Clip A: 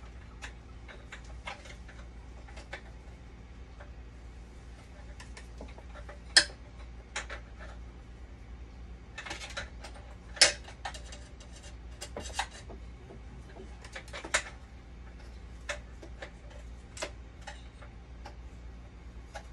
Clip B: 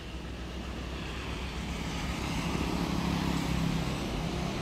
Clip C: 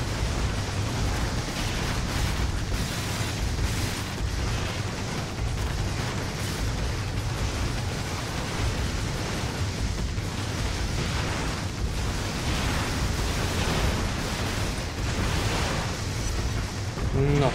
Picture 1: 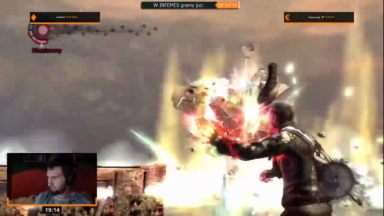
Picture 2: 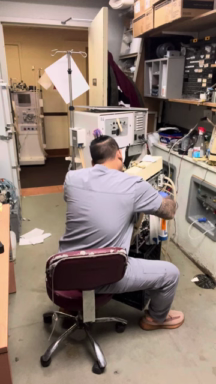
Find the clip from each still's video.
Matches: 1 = C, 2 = A